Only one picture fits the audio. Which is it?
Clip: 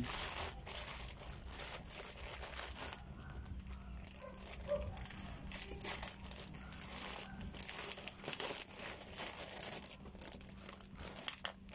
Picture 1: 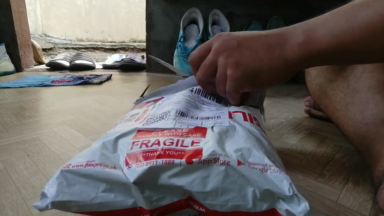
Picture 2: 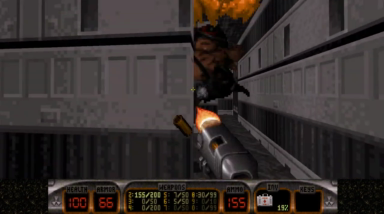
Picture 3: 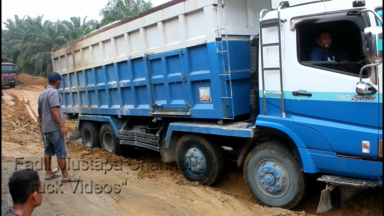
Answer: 1